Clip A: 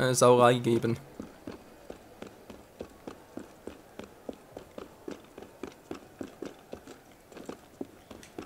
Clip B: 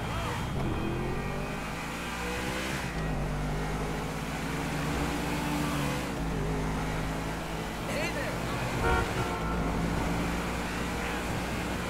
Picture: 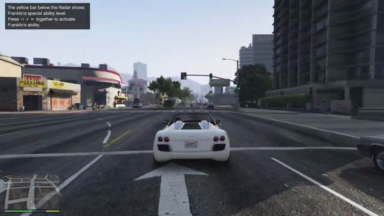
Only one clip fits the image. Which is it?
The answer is B